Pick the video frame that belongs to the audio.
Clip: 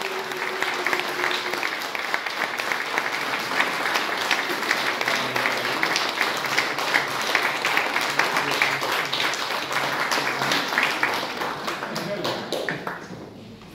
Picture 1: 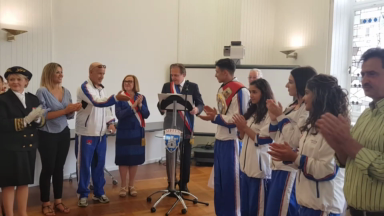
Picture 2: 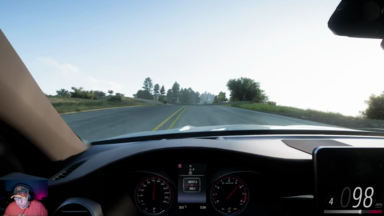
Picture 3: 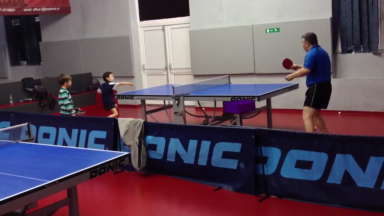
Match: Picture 1